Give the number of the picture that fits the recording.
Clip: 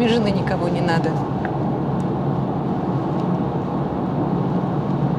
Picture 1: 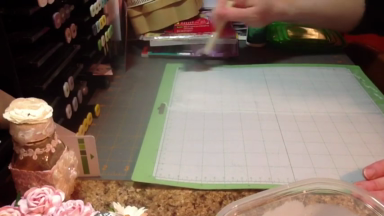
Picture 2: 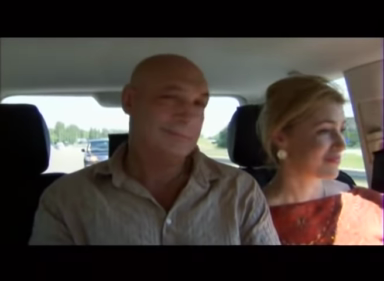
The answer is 2